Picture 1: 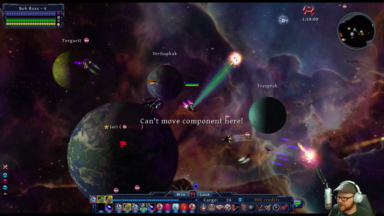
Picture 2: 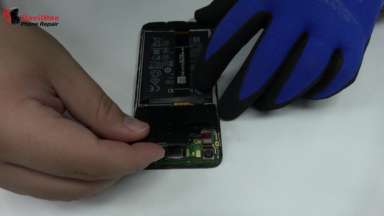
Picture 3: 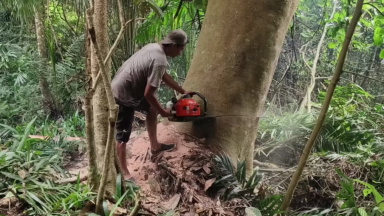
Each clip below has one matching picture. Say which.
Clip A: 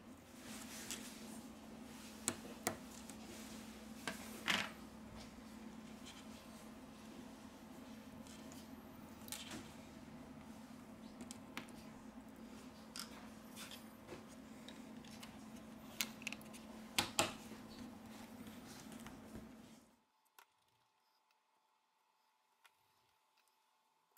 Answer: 2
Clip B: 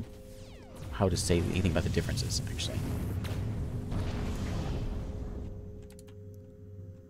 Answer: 1